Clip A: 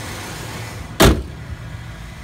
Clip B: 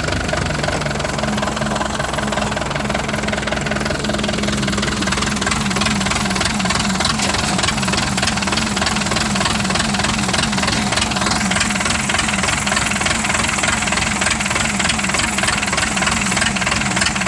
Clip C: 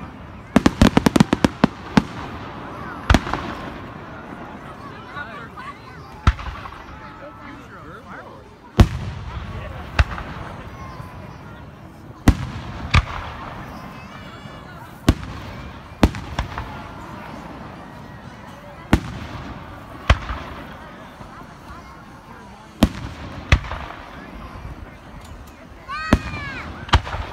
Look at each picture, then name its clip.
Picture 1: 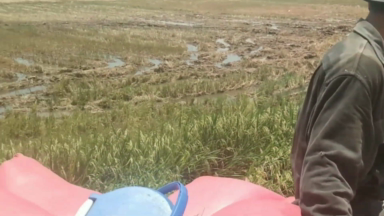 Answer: B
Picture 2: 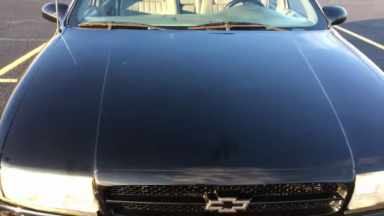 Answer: A